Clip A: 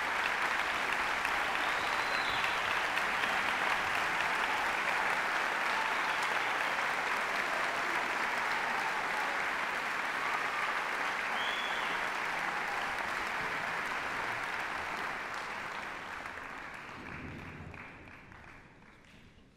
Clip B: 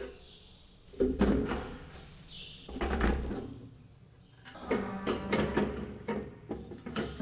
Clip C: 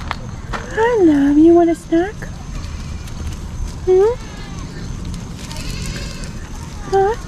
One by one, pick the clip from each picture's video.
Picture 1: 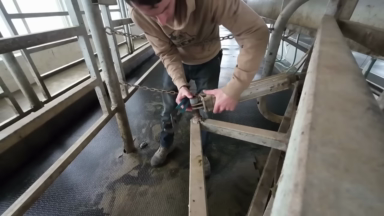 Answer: B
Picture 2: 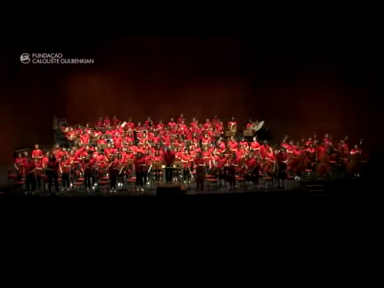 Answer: A